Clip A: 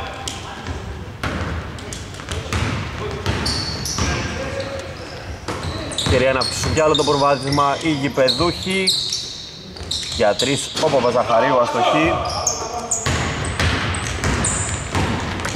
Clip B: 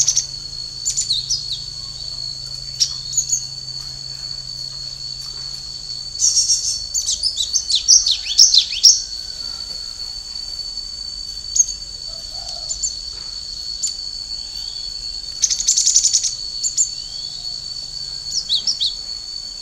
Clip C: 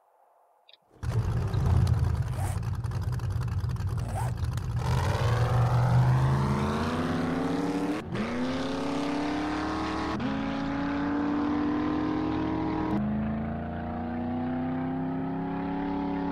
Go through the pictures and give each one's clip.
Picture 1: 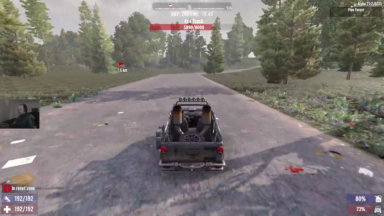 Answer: C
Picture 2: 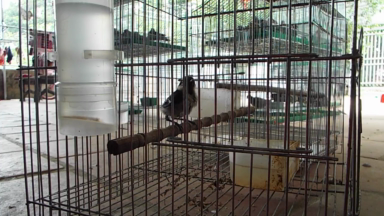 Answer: B